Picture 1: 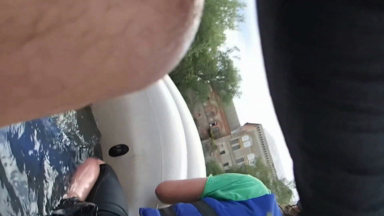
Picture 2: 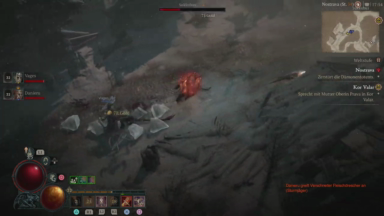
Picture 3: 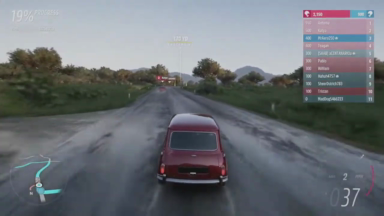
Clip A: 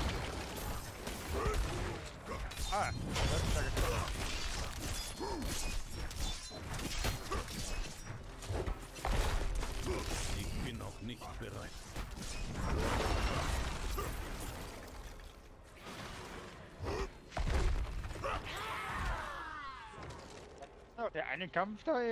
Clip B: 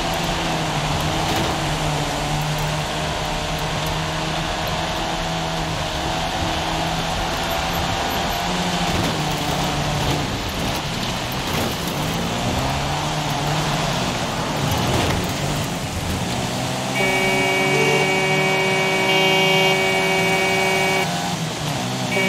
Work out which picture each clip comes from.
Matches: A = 2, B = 3